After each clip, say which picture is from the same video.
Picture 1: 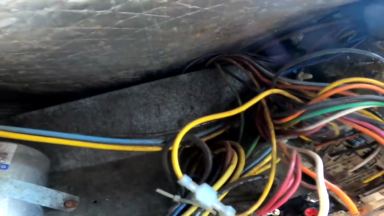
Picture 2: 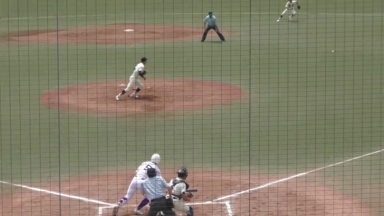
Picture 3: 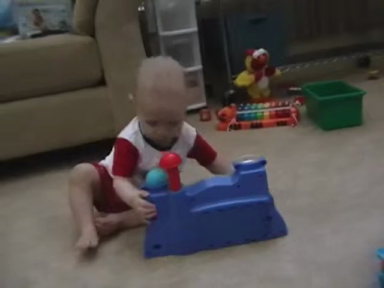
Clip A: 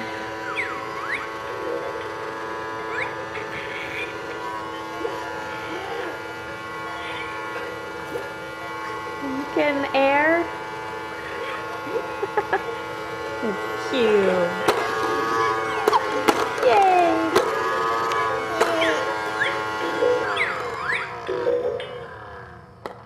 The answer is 3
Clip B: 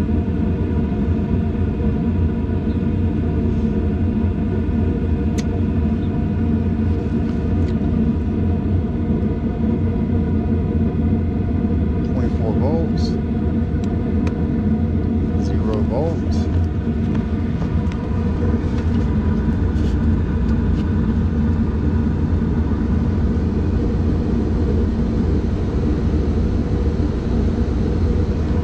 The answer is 1